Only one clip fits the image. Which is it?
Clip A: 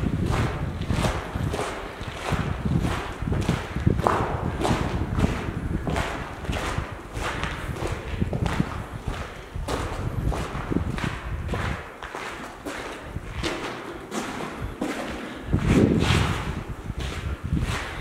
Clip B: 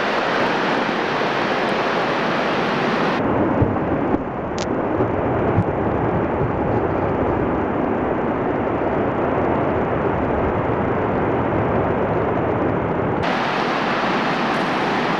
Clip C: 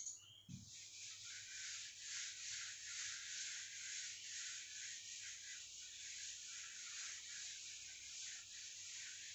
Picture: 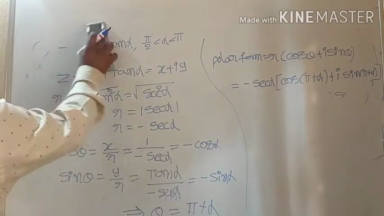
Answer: C